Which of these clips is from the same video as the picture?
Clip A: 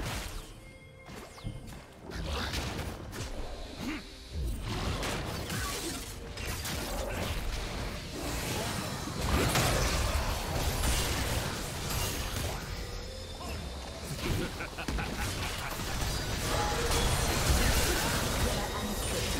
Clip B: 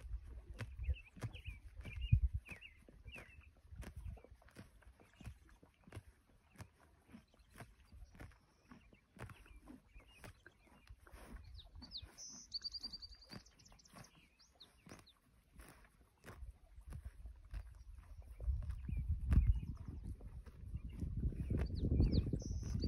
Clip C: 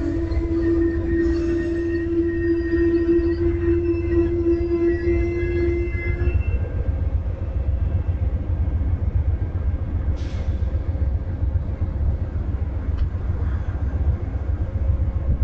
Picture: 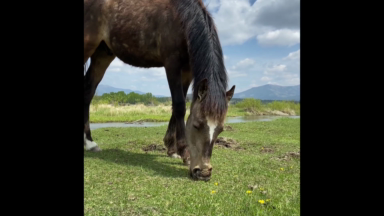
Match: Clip B